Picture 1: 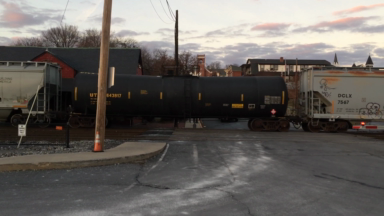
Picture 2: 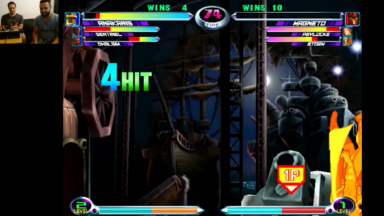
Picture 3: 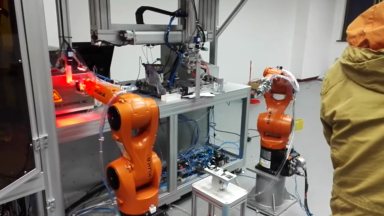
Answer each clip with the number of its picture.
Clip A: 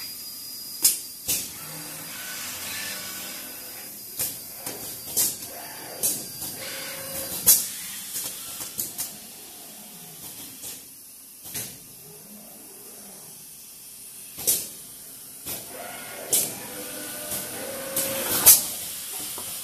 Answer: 3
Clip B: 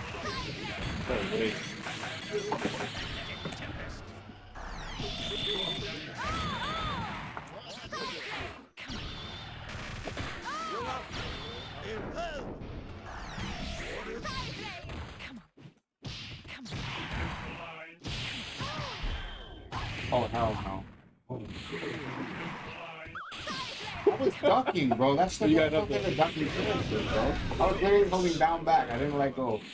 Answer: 2